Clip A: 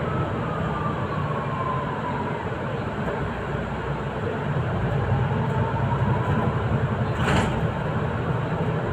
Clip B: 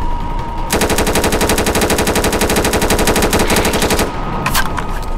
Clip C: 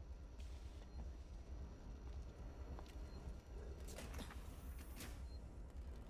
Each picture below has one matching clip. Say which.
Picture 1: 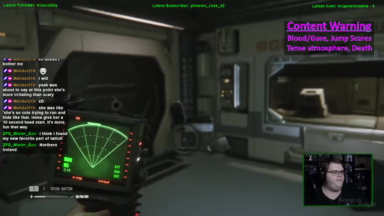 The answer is C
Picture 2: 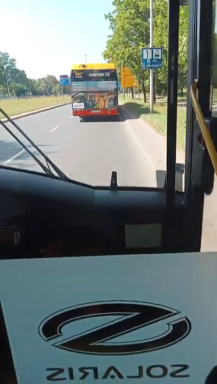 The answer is A